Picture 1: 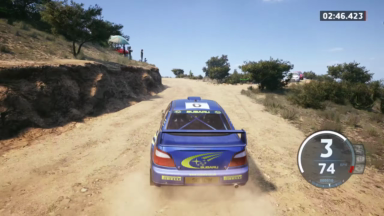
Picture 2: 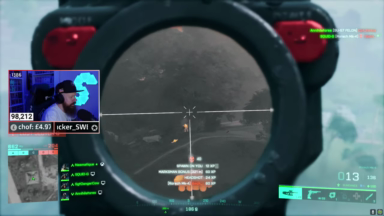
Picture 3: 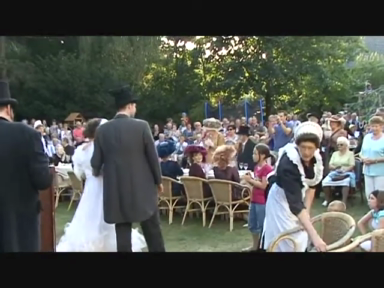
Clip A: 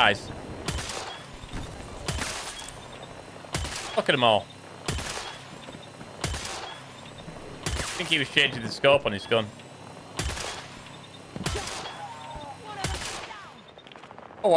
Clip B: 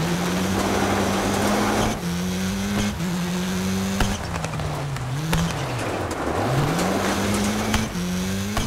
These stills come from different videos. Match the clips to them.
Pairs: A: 2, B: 1